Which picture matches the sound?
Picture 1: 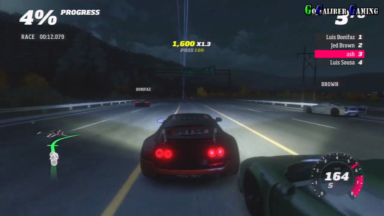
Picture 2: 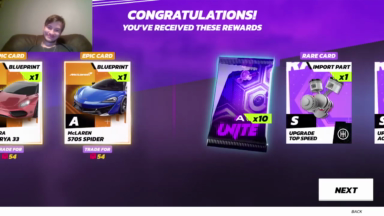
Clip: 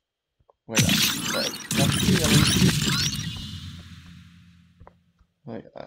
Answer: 2